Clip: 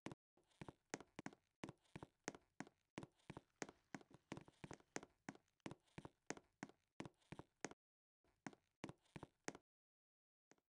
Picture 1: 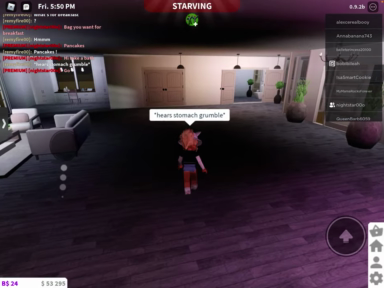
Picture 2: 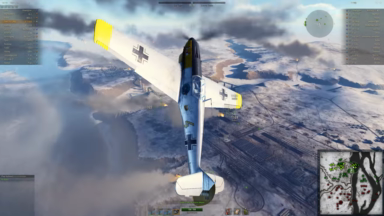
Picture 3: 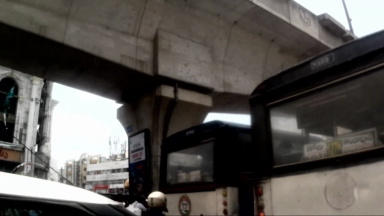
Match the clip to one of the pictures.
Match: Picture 1